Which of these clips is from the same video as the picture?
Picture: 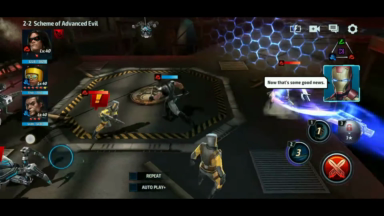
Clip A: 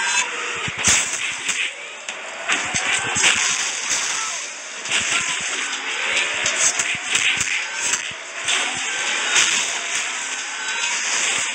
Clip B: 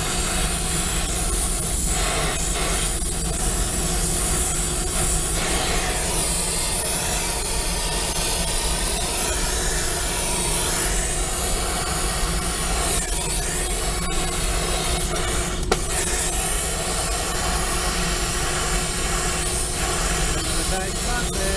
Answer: A